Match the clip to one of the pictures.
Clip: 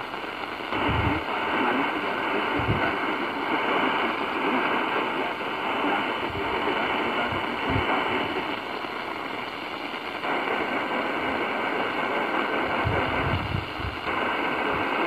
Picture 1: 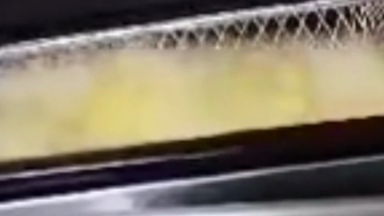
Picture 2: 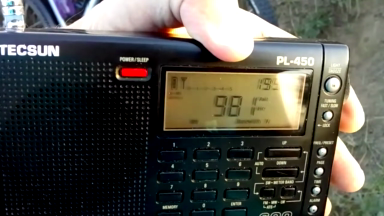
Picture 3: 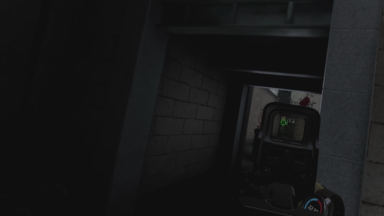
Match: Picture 2